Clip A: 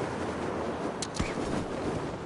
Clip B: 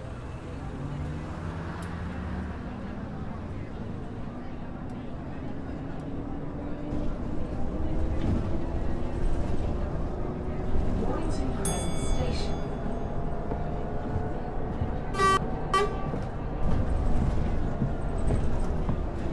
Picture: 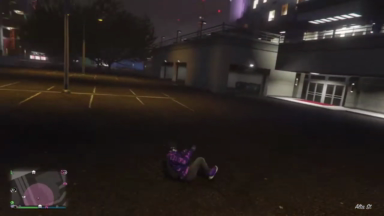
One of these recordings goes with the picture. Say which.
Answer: A